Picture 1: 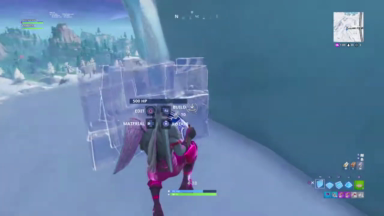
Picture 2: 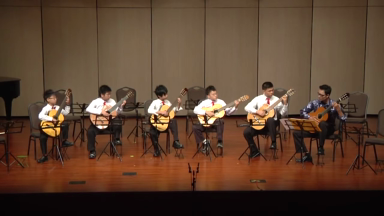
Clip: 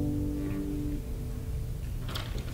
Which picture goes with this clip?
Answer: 2